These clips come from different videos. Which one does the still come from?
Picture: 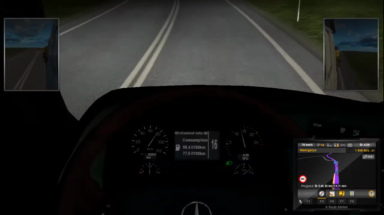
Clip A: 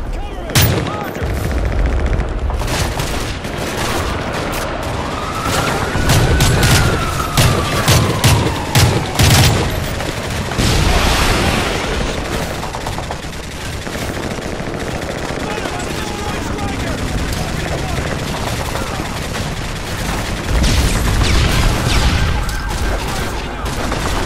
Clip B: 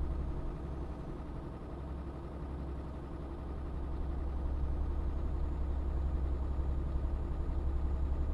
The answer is B